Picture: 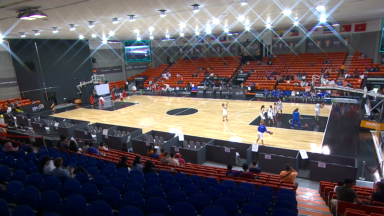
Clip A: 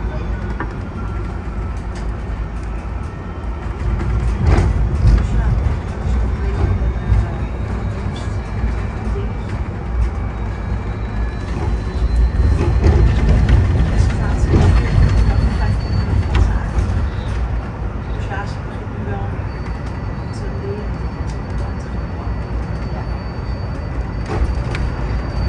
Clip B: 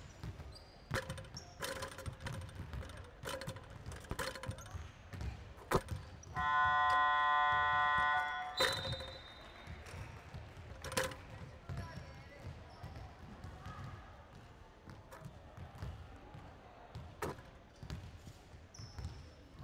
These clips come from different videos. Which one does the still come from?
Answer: B